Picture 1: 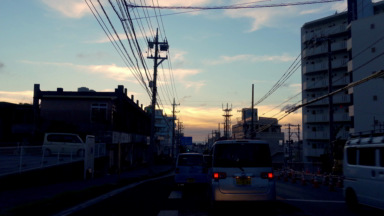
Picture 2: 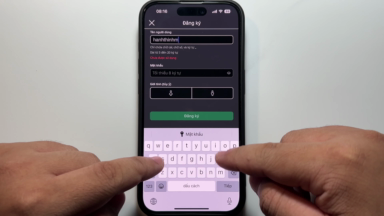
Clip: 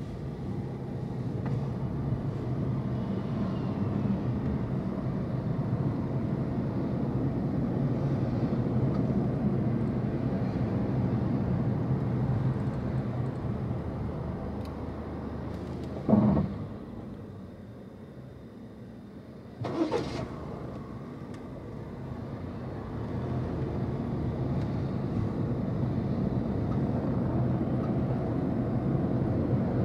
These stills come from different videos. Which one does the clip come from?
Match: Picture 1